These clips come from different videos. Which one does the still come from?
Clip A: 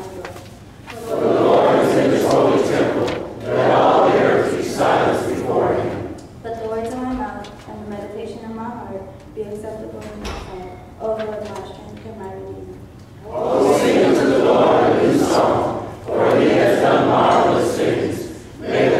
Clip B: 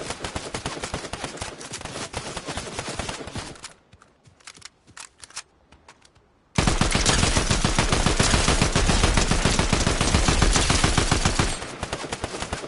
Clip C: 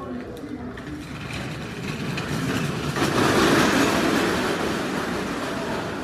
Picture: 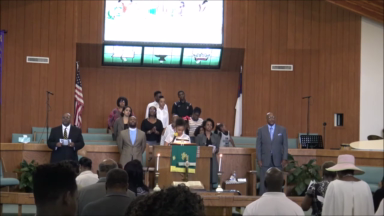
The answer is A